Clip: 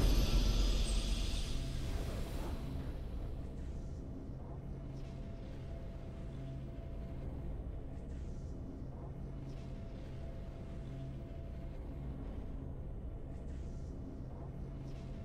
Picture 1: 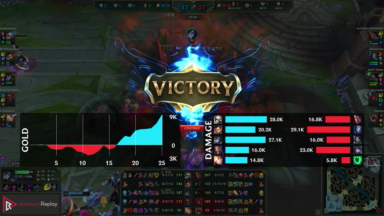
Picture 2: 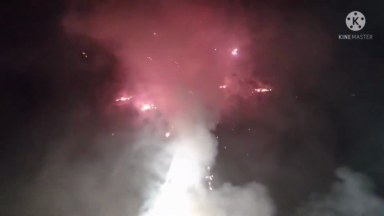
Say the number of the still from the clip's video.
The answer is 1